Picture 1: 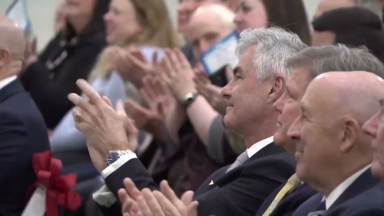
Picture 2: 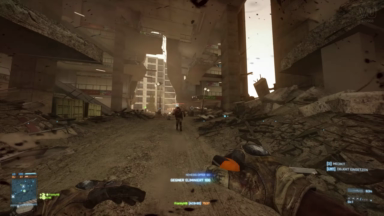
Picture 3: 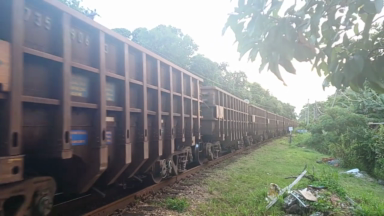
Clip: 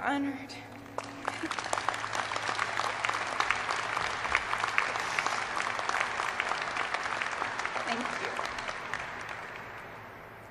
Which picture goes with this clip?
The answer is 1